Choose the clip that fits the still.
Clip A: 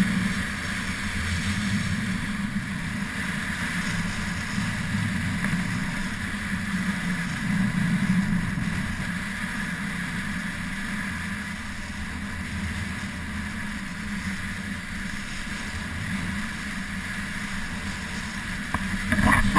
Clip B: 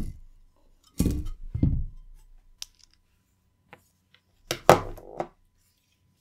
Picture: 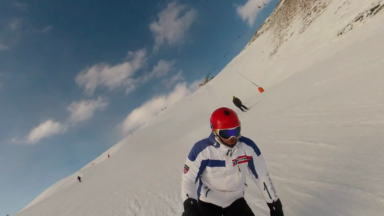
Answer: A